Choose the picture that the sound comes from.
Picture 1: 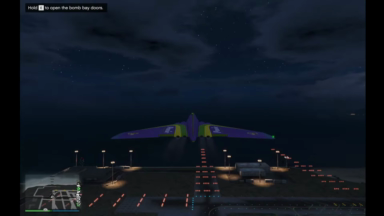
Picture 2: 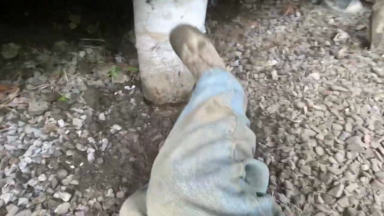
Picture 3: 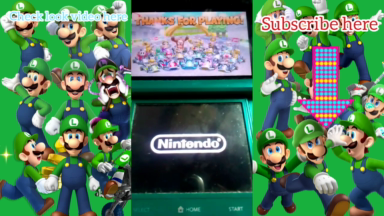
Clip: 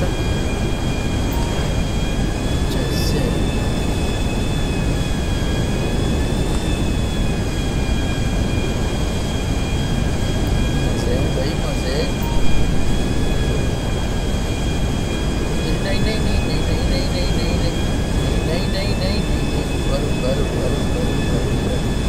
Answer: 1